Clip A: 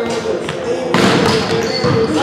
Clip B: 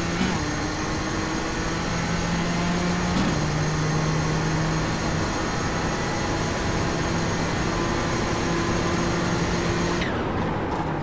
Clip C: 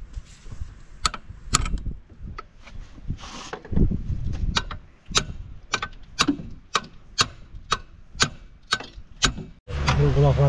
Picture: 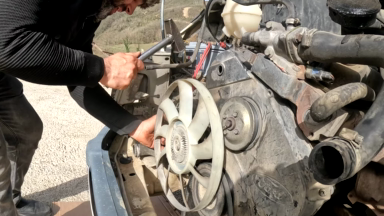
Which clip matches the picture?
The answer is C